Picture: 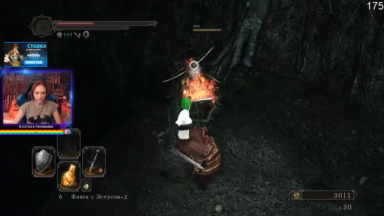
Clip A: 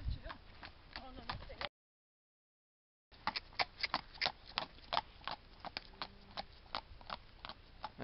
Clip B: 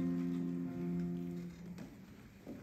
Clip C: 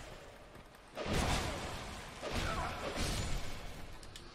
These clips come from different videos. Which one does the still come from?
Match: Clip C